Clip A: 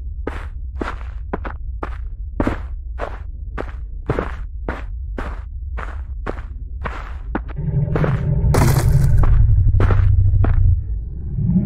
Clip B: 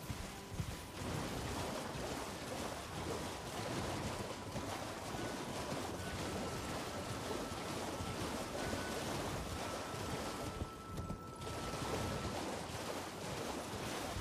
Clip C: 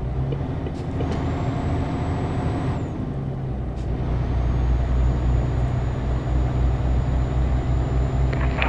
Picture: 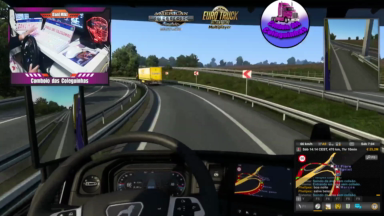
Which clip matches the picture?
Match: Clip C